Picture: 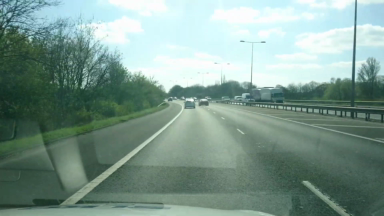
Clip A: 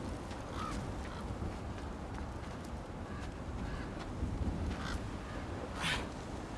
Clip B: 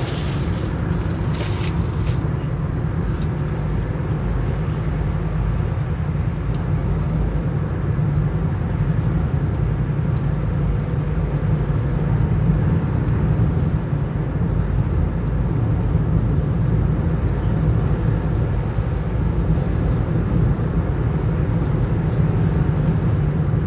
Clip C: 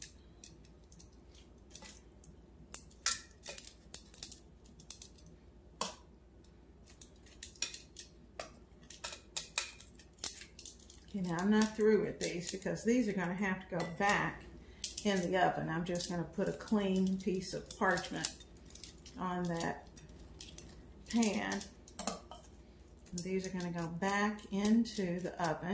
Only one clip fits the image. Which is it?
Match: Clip B